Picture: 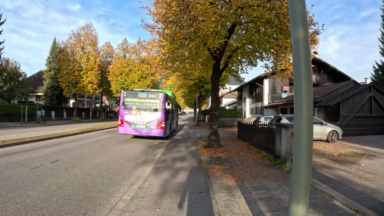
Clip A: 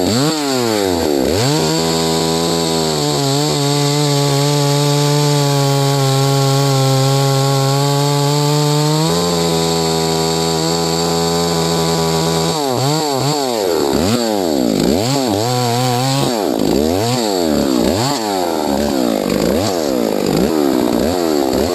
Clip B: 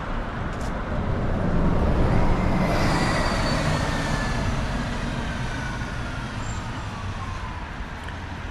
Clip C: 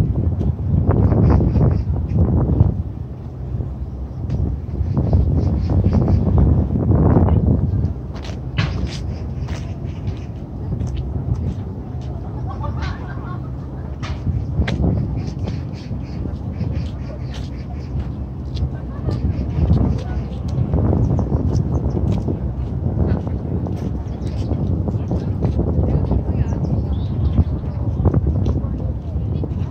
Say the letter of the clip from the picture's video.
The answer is B